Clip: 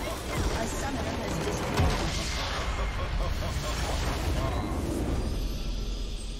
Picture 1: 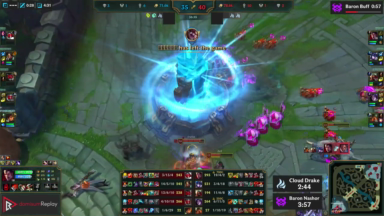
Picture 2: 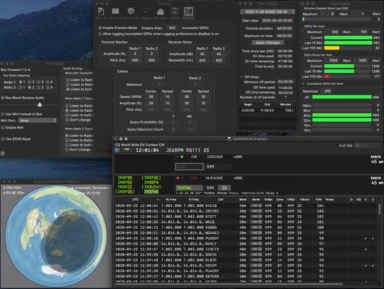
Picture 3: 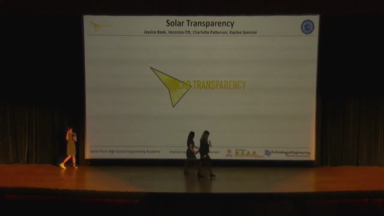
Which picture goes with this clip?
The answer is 1